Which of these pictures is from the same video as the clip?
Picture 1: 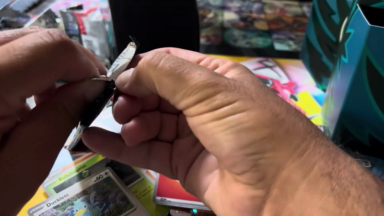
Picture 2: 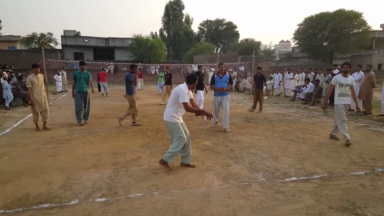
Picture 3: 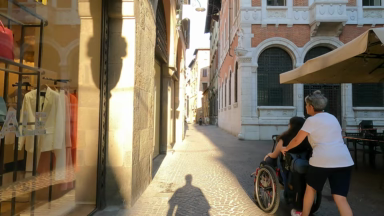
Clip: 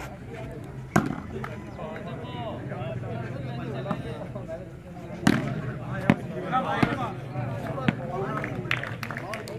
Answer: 2